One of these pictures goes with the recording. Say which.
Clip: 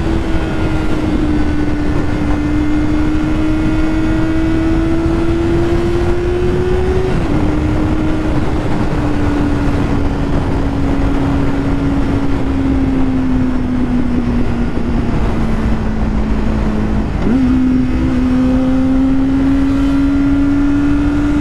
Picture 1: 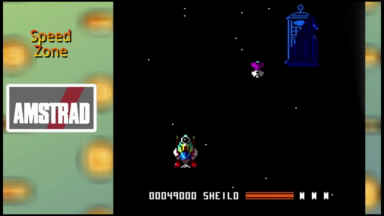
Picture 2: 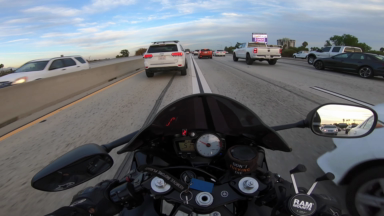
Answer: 2